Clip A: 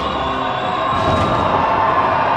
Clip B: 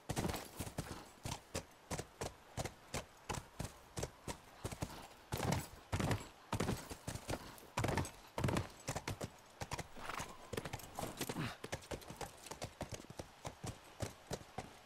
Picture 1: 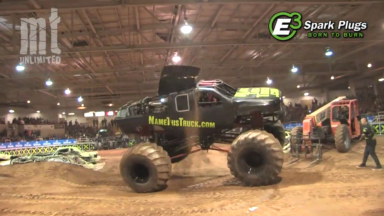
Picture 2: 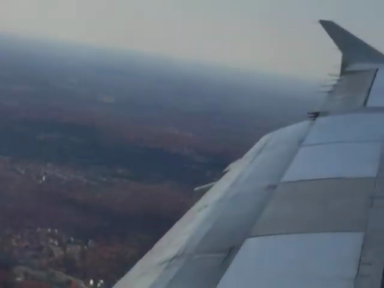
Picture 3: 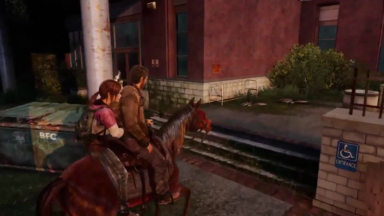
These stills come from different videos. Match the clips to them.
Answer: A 1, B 3